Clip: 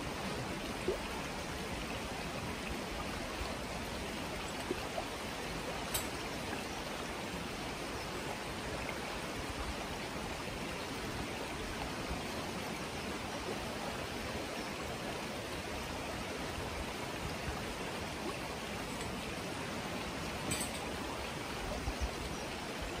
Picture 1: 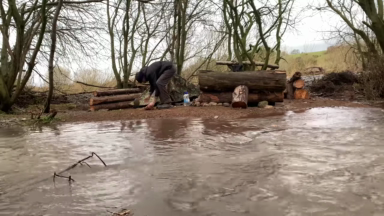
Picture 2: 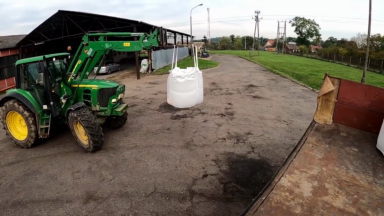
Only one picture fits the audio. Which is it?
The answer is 1